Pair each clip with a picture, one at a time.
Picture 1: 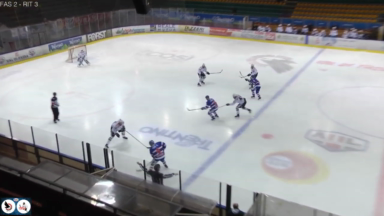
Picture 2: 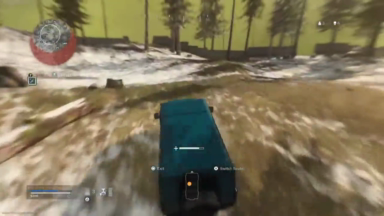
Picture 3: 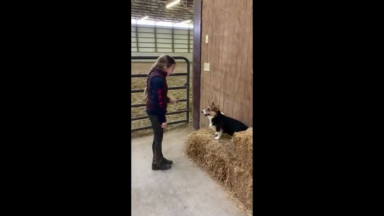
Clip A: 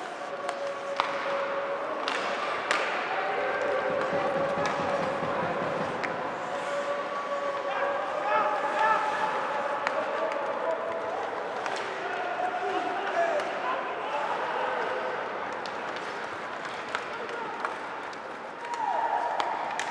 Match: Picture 1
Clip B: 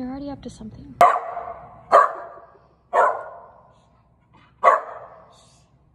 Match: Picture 3